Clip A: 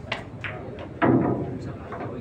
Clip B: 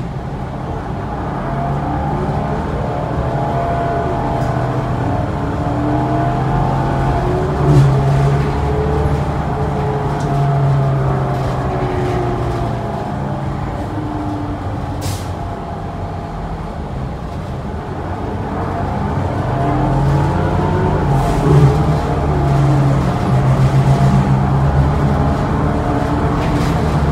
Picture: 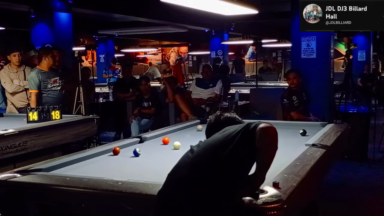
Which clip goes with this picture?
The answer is A